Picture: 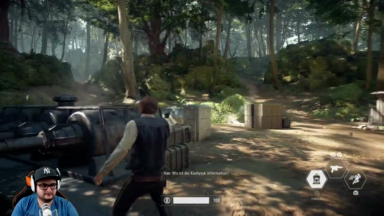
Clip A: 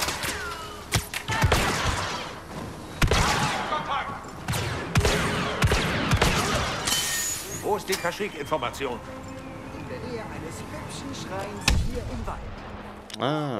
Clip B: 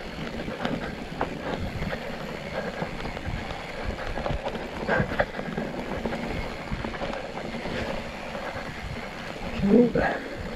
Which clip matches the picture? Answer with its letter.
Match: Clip A